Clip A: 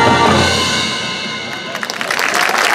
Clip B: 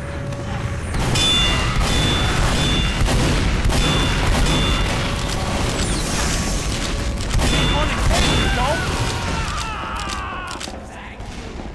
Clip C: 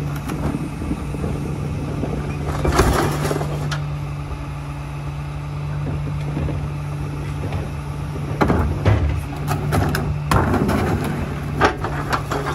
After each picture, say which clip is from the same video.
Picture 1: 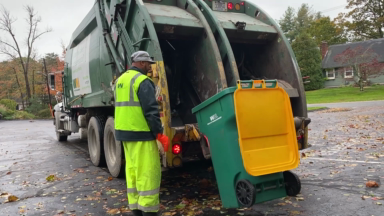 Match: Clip C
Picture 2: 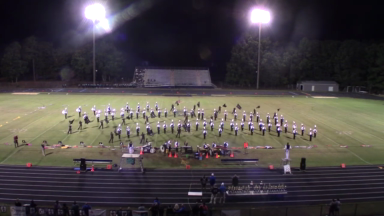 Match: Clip A